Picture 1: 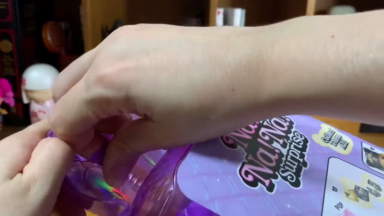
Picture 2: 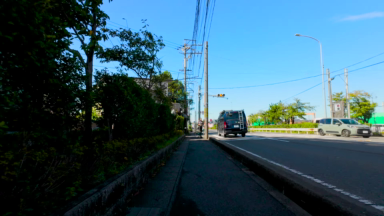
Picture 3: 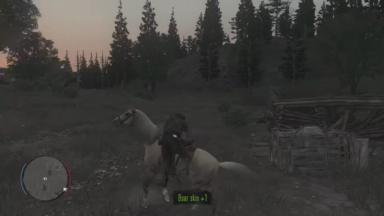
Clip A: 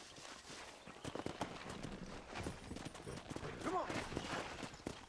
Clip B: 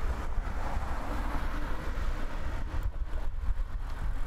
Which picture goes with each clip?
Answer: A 3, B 2